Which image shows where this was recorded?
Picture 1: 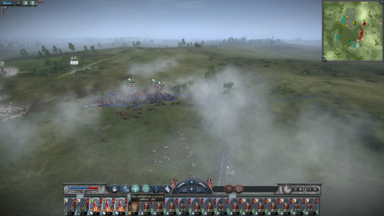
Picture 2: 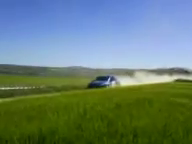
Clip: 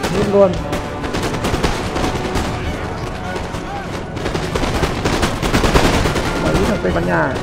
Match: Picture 1